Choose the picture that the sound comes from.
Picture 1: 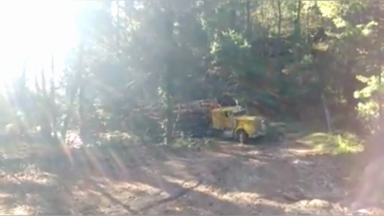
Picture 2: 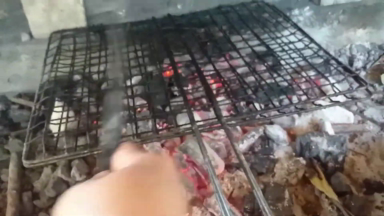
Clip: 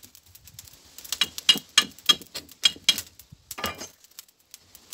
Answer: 2